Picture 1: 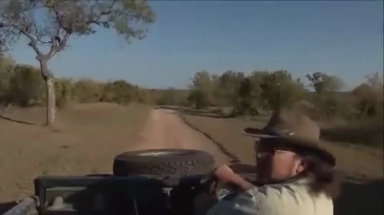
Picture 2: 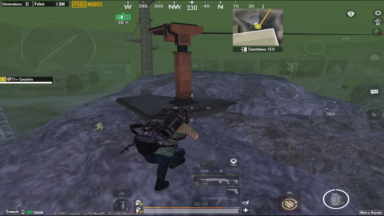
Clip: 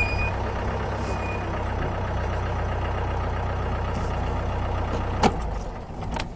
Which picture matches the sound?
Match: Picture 1